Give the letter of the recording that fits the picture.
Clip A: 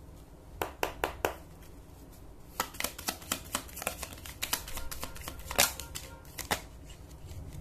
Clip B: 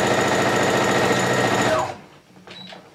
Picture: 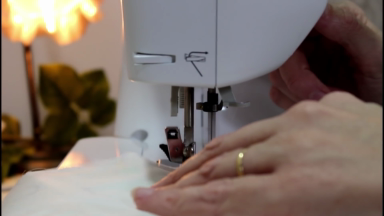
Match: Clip B